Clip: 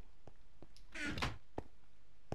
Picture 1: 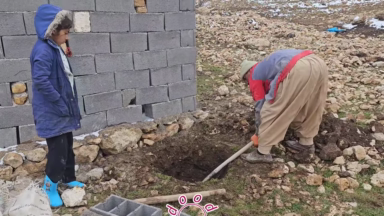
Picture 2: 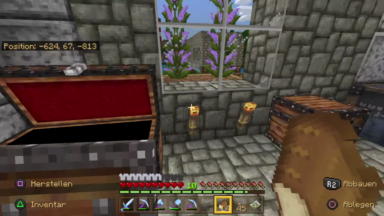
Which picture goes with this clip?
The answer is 2